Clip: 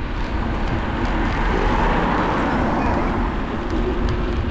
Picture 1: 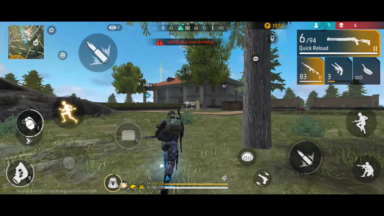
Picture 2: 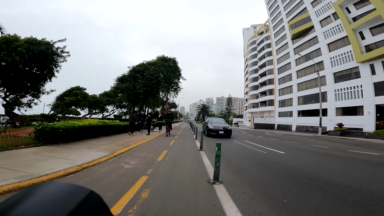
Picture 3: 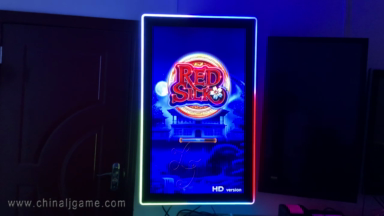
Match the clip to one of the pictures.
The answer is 2